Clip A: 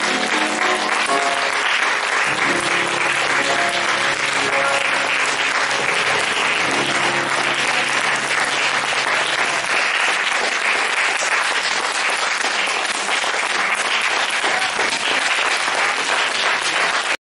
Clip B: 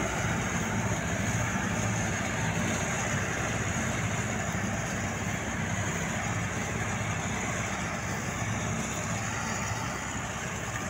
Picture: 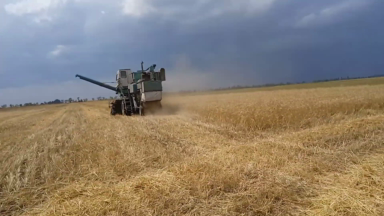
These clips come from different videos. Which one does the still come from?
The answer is B